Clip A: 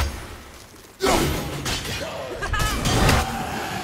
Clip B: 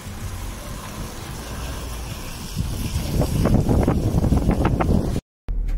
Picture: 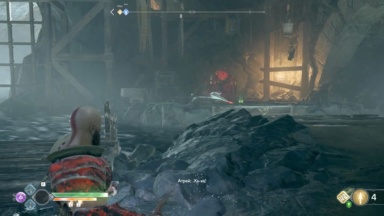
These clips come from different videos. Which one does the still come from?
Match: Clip A